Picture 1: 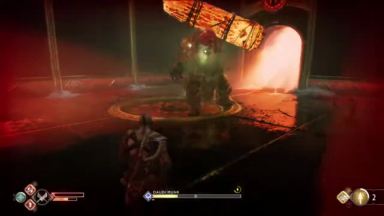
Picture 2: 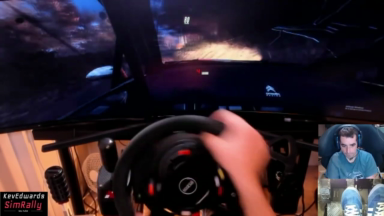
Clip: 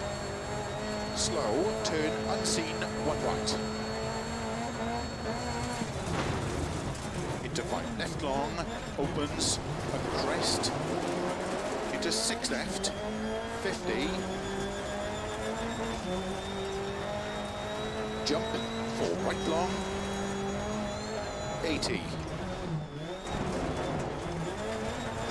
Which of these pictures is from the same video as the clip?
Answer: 2